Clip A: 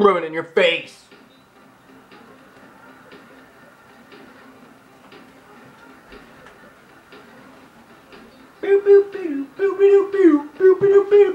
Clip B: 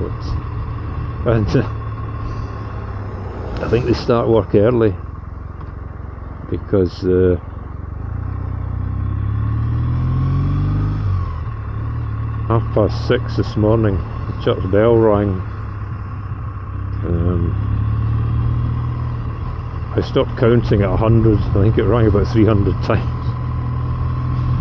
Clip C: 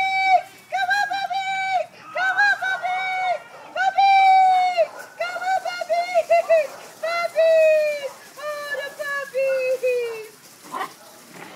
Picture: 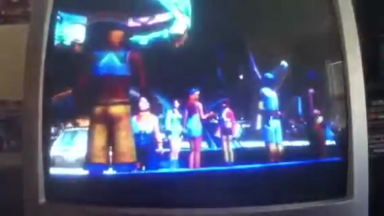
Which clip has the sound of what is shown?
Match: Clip A